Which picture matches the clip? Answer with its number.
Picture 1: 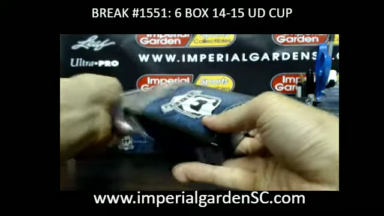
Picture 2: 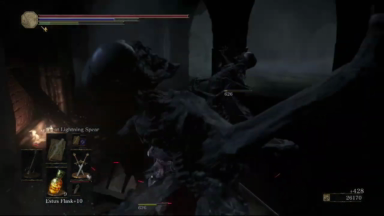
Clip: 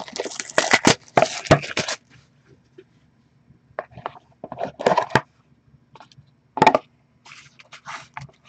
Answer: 1